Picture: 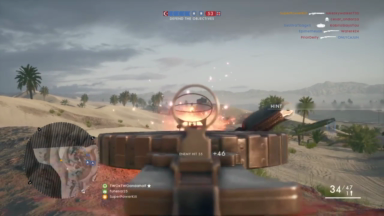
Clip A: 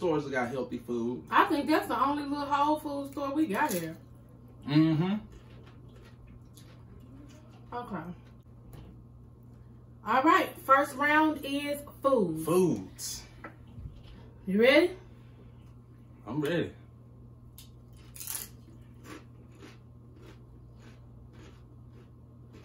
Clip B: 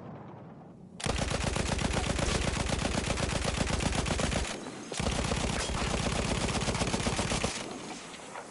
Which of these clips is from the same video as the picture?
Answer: B